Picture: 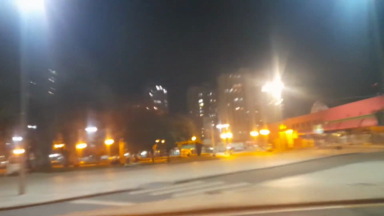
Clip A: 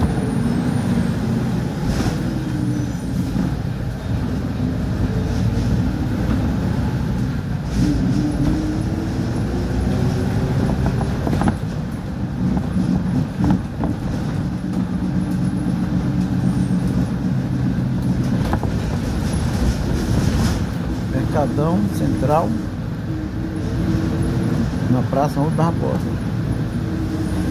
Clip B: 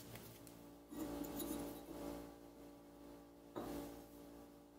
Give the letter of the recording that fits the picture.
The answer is A